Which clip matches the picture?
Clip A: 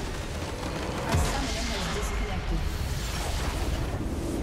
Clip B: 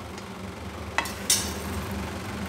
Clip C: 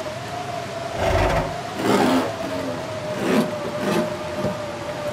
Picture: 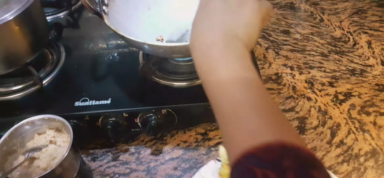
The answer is B